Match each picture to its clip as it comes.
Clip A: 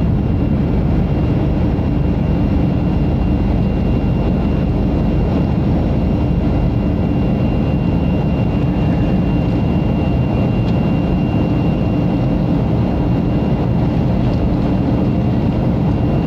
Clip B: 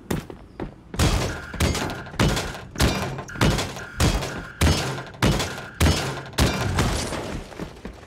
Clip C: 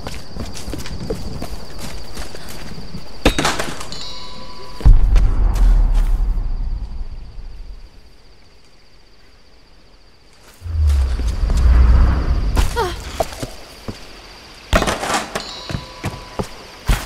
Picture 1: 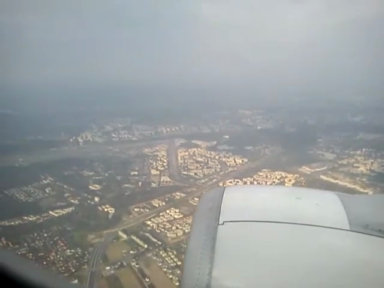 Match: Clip A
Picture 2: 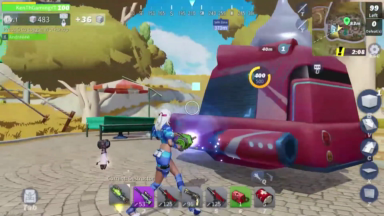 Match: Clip B